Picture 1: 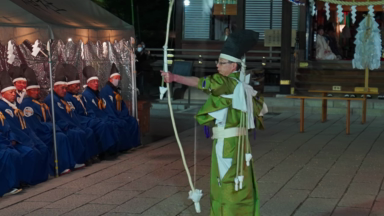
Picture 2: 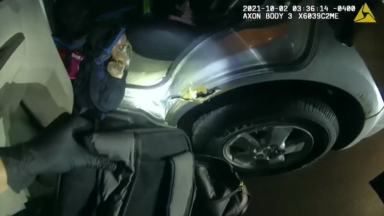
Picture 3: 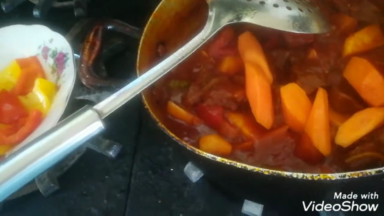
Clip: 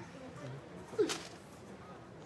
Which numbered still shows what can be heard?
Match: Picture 1